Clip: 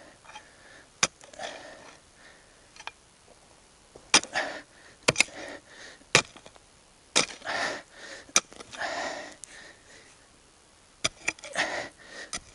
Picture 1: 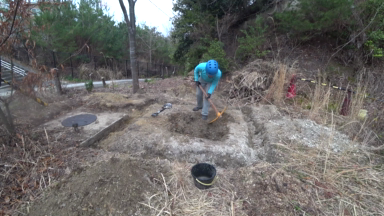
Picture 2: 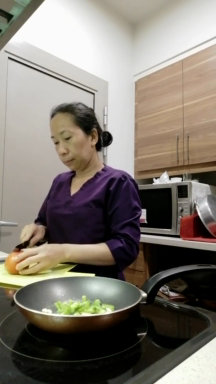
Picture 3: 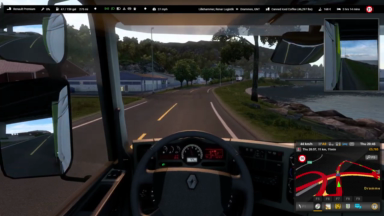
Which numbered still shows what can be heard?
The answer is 1